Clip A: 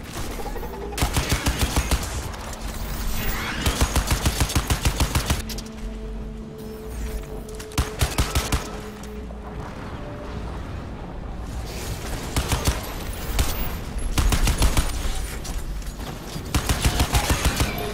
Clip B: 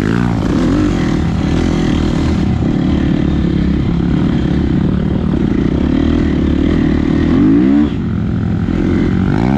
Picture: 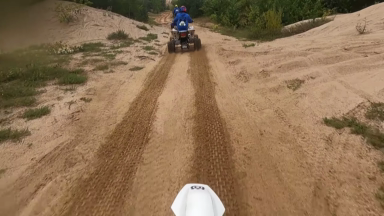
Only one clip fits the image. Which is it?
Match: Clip B